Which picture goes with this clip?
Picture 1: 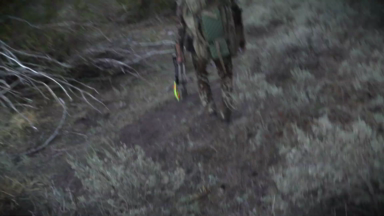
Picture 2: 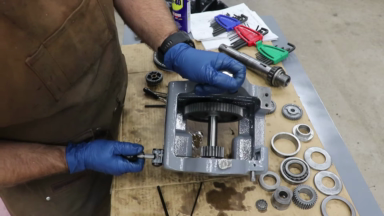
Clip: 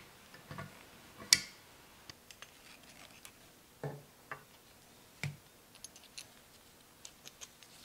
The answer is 2